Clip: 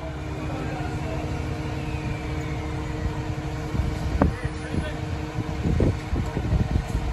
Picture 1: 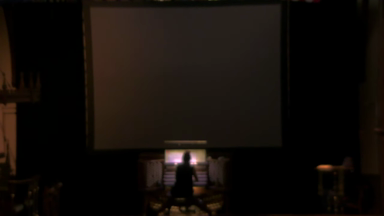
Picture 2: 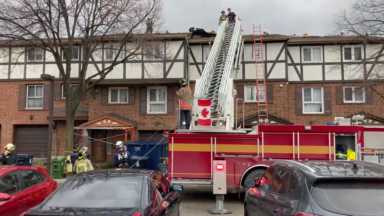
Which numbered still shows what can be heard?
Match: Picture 2